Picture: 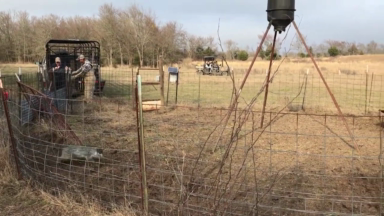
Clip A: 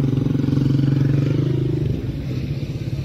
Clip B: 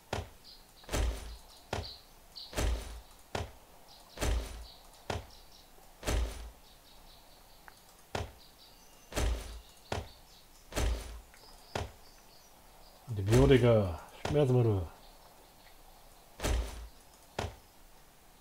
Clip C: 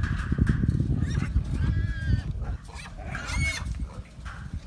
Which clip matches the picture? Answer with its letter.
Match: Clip C